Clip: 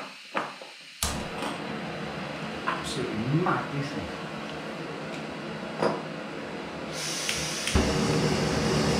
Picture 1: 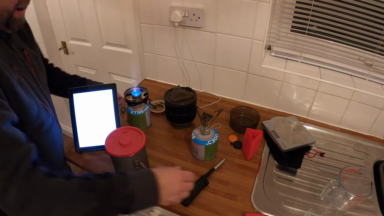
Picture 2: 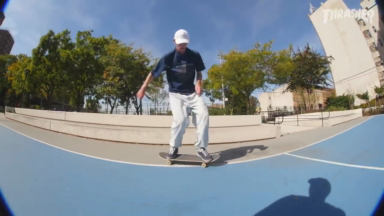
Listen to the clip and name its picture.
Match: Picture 1